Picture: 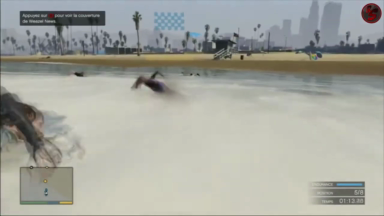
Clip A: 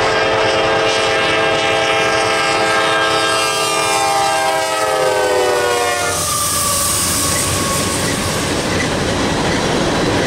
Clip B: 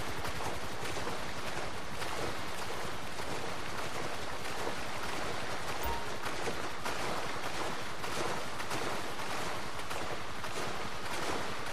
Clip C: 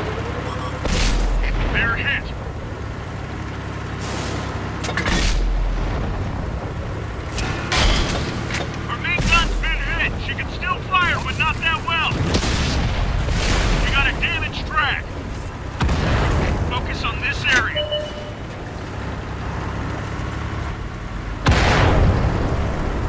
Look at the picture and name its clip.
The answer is B